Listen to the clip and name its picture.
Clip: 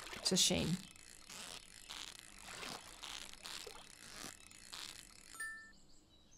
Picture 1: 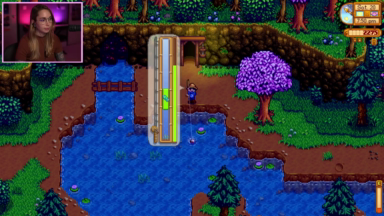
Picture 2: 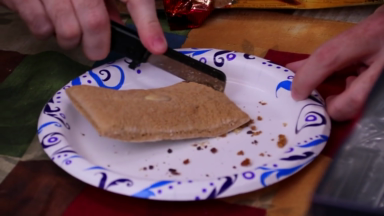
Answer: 1